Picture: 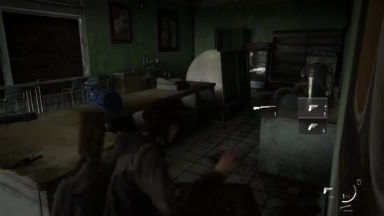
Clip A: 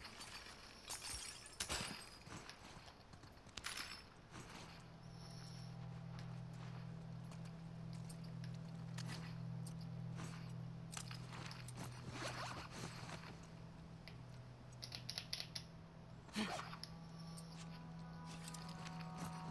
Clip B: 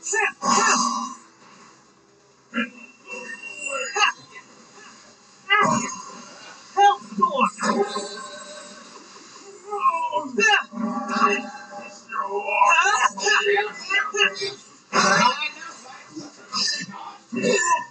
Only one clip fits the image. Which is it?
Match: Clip A